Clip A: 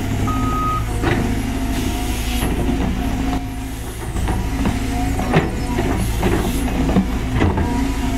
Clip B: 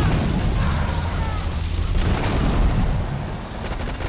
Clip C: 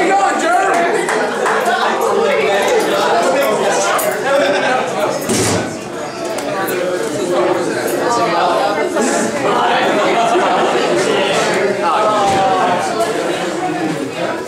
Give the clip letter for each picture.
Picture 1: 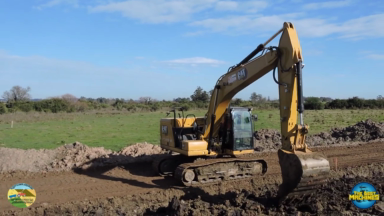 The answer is A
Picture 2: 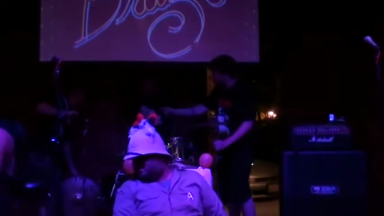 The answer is C